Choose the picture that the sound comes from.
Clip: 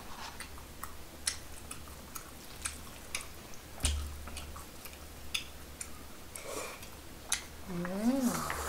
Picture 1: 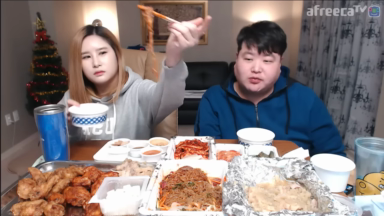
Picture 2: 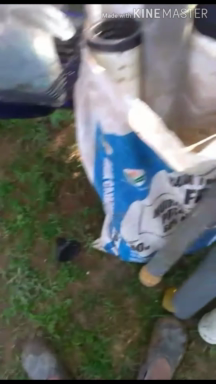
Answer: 1